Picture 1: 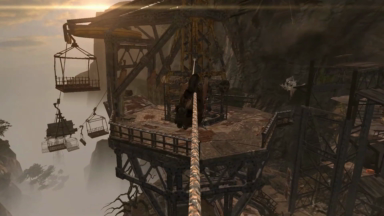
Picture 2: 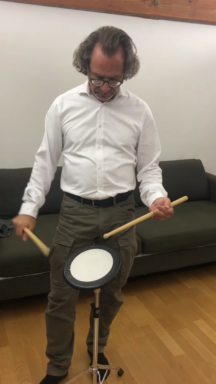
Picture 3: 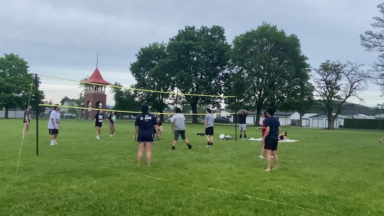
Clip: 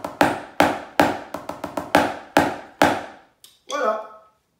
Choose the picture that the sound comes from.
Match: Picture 2